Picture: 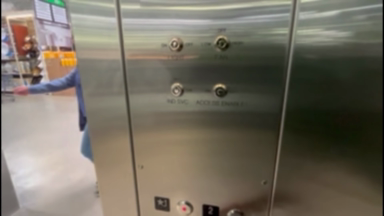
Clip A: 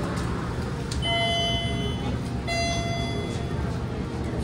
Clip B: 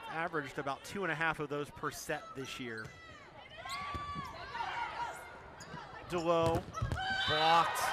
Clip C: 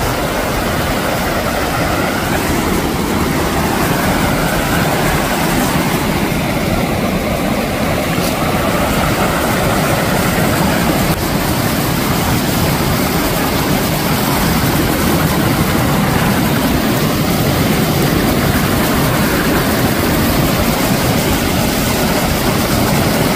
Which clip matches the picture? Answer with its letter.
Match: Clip A